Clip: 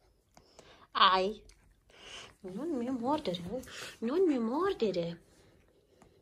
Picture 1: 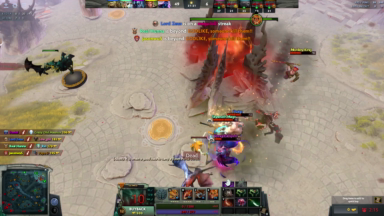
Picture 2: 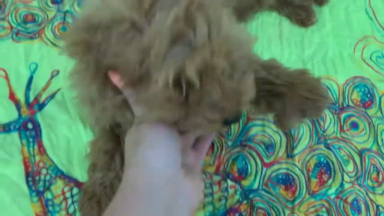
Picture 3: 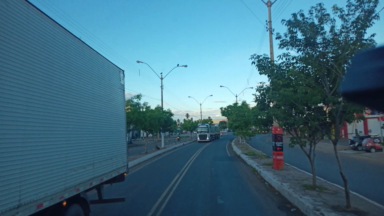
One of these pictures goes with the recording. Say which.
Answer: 2